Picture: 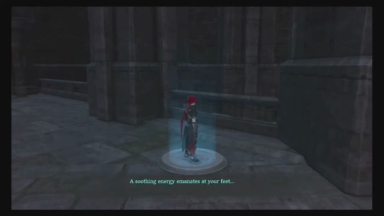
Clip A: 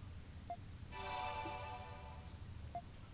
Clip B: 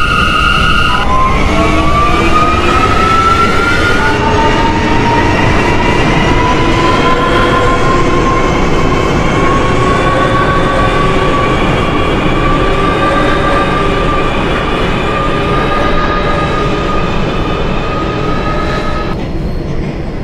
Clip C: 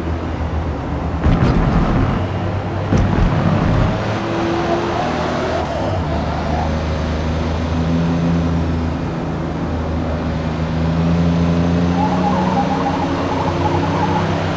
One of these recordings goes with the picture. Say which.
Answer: A